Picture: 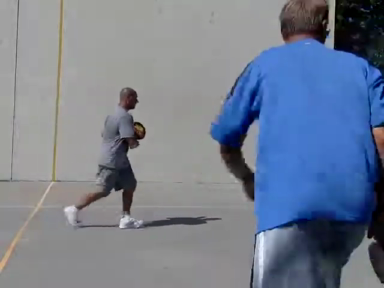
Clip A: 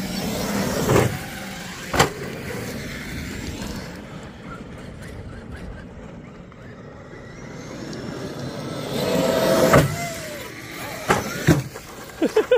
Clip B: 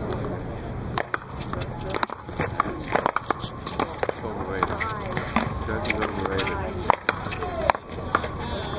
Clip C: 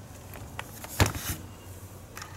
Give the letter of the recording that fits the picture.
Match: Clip B